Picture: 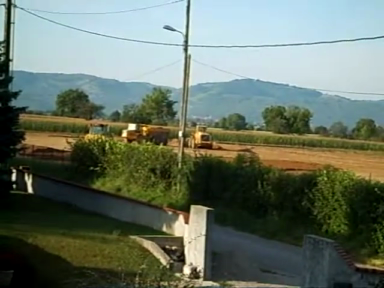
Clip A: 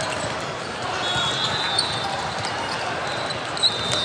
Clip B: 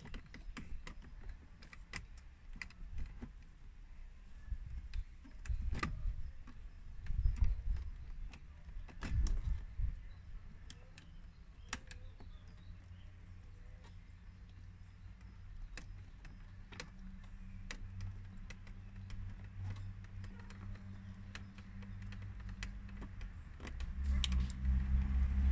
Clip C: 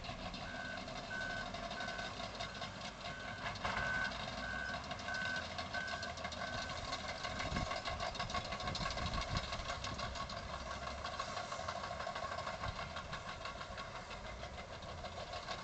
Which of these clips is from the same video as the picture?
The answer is C